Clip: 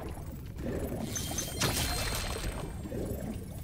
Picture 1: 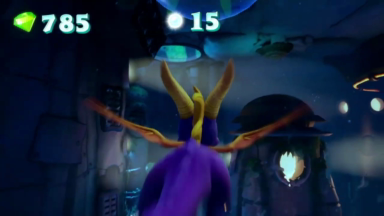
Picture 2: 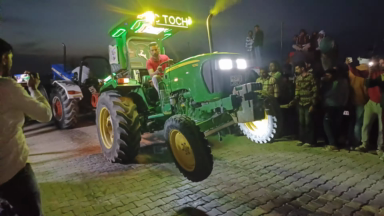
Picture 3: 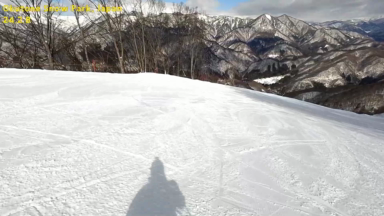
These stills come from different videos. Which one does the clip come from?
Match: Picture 1